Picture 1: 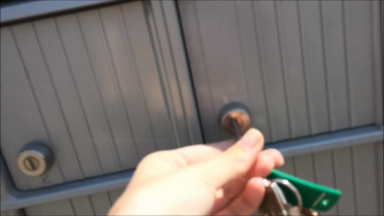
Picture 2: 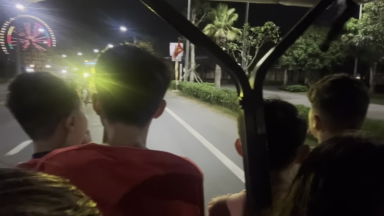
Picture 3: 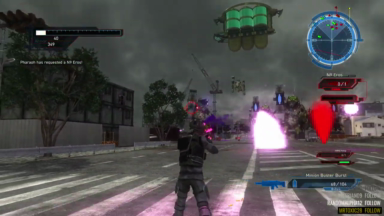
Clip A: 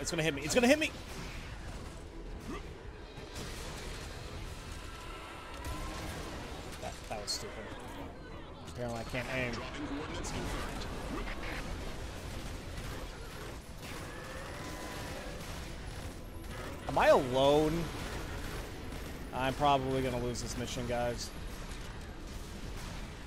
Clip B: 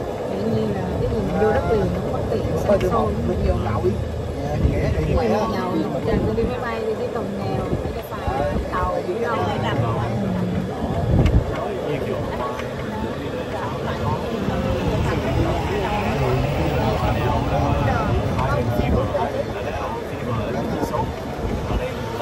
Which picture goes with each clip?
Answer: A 3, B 2